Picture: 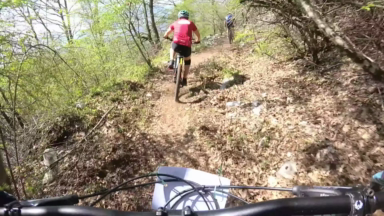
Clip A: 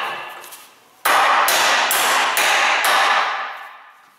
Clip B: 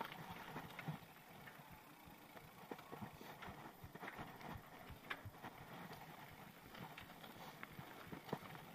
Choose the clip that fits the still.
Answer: B